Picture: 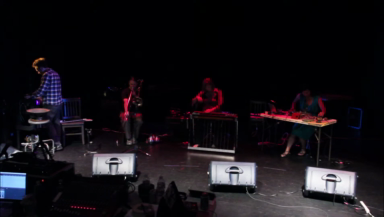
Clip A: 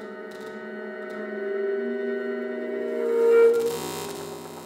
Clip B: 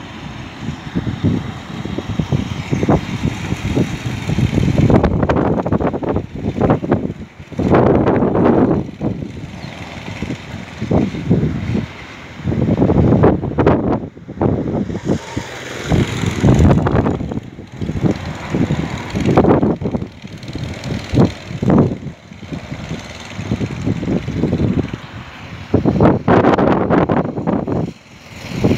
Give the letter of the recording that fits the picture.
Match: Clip A